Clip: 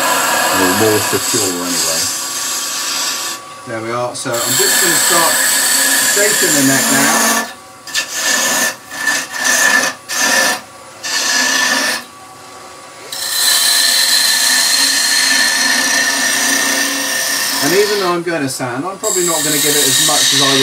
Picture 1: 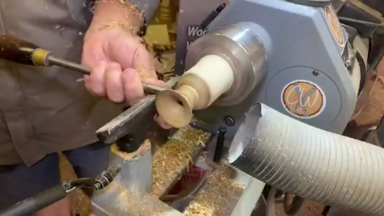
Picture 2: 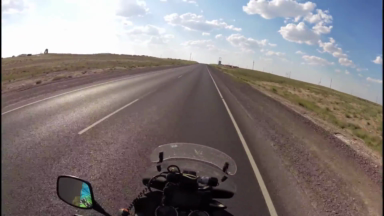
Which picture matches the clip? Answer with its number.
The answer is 1